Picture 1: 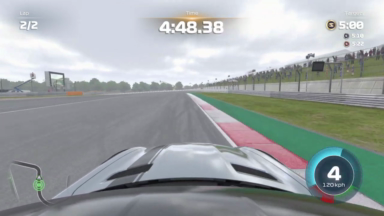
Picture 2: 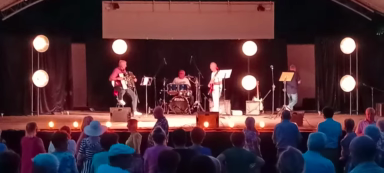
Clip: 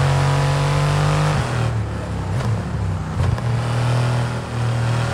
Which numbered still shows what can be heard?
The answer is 1